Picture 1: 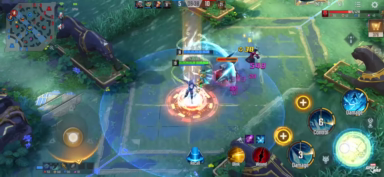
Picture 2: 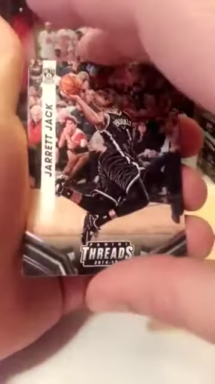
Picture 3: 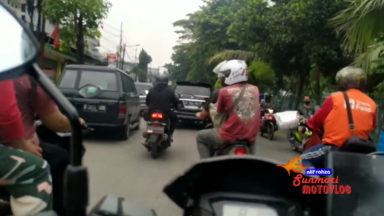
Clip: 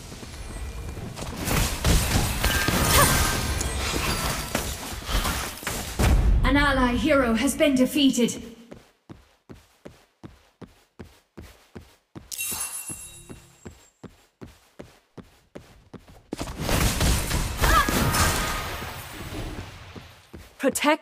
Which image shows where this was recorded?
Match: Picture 1